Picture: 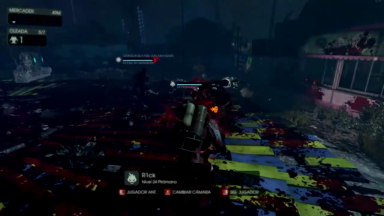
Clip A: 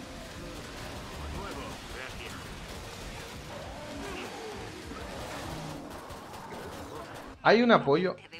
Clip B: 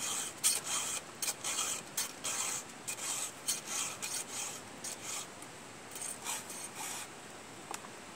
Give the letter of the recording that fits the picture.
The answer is A